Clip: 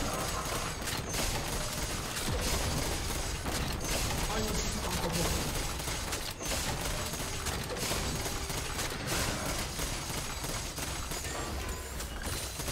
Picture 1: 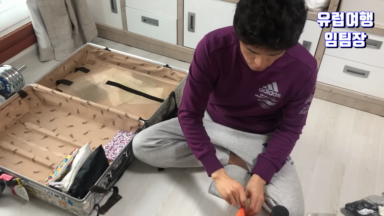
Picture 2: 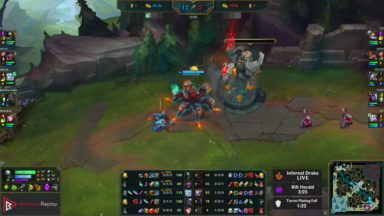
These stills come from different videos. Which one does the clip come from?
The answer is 2